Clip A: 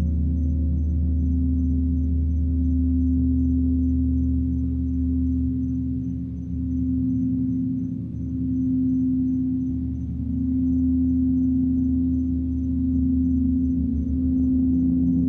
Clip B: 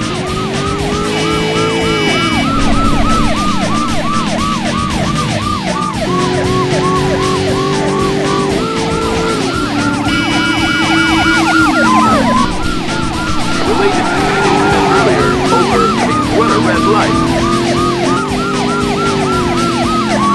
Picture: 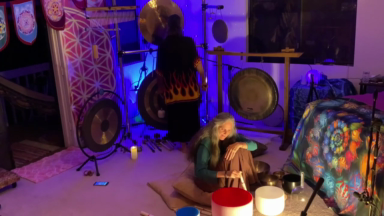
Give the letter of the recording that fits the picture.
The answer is A